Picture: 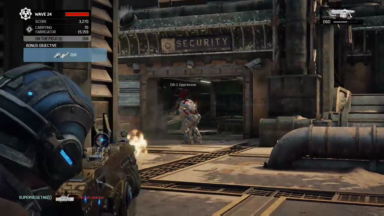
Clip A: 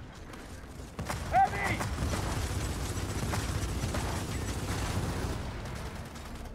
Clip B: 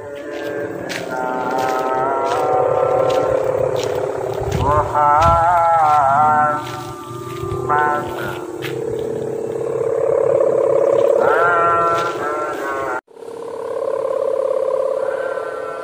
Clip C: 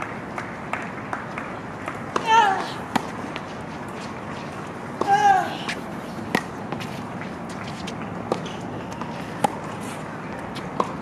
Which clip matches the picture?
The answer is A